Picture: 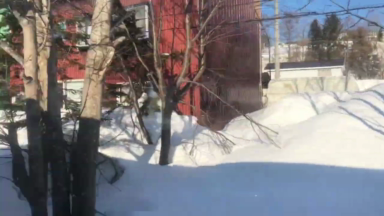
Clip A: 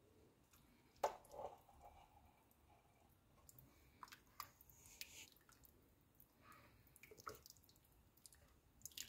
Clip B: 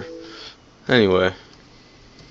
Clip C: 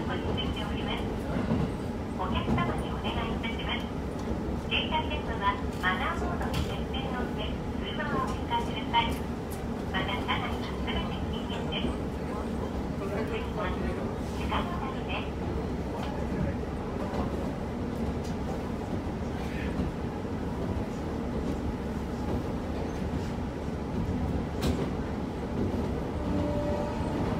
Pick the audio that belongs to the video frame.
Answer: C